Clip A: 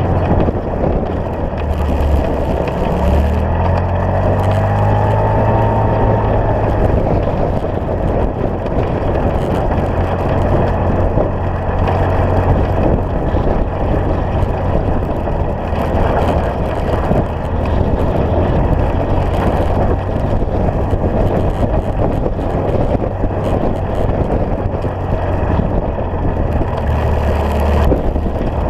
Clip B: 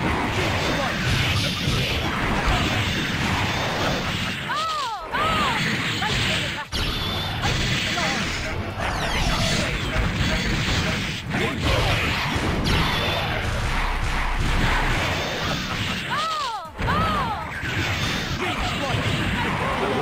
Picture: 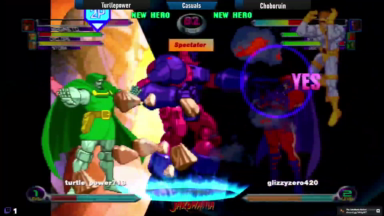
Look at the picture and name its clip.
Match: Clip B